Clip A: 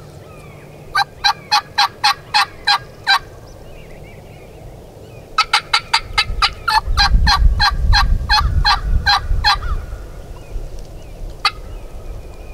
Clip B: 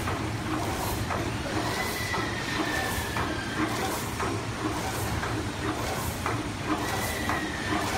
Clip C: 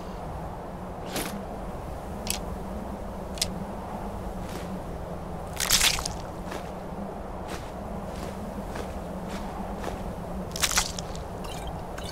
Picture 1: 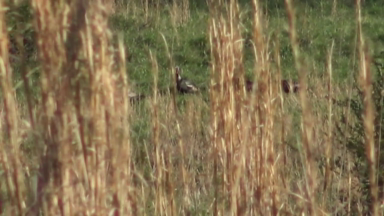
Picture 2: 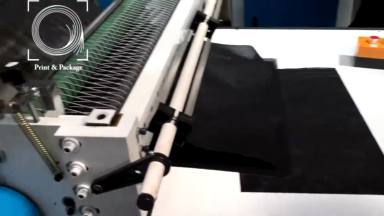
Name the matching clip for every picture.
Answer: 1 A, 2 B